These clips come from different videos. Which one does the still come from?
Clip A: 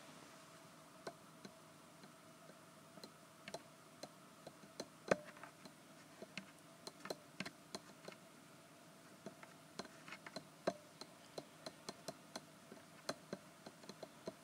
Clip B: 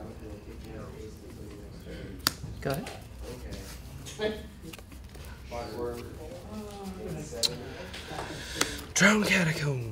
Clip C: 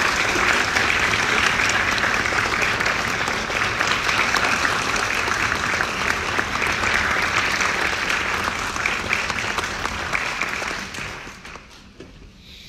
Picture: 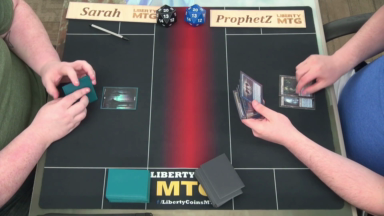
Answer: B